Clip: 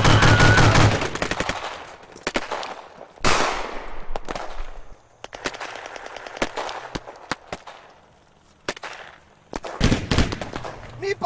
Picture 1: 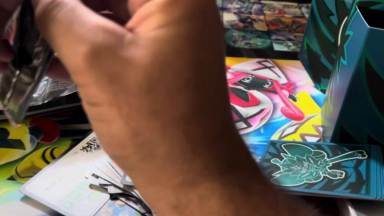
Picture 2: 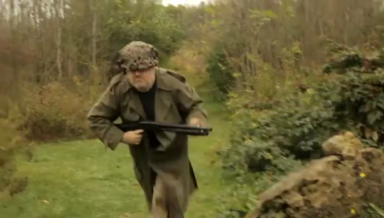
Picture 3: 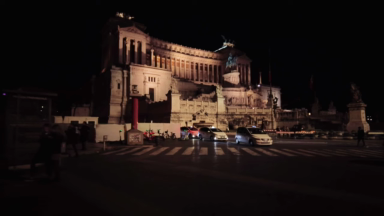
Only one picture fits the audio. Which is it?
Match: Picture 2